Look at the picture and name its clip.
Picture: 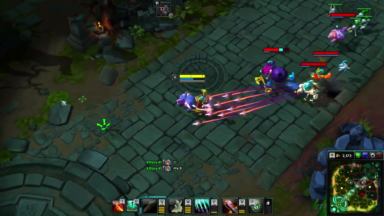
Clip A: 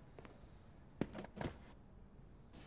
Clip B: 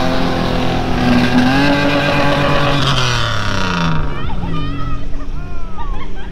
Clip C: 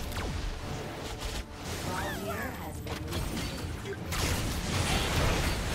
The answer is C